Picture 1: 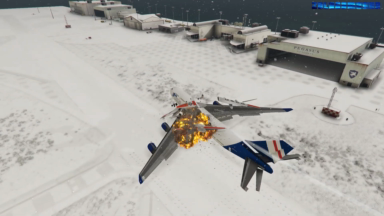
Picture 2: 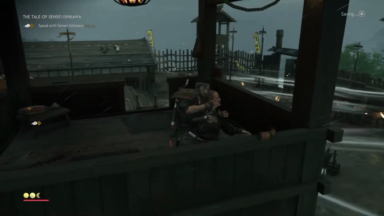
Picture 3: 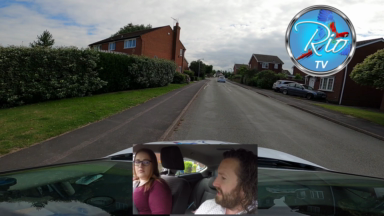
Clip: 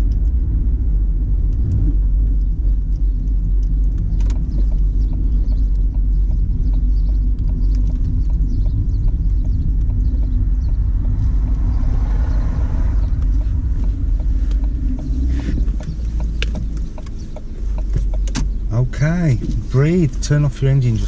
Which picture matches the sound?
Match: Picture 3